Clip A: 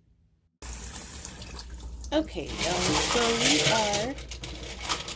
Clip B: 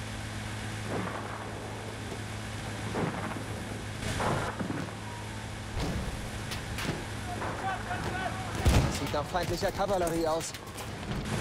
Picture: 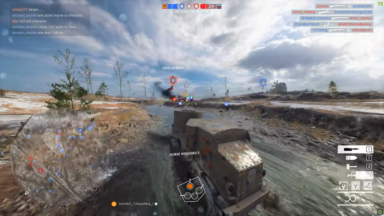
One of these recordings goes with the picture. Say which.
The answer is B